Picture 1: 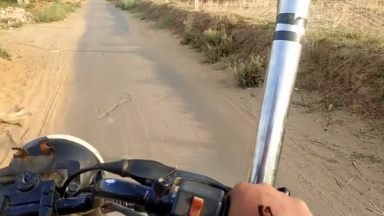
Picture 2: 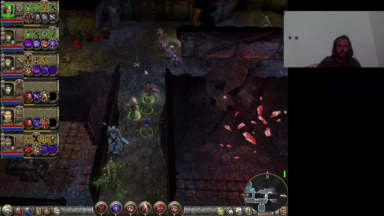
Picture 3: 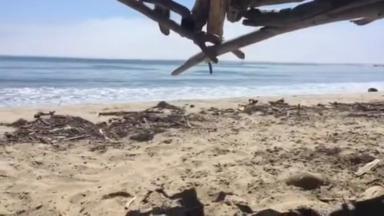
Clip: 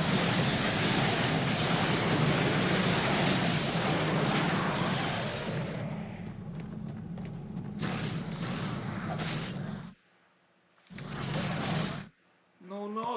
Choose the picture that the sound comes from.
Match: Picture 2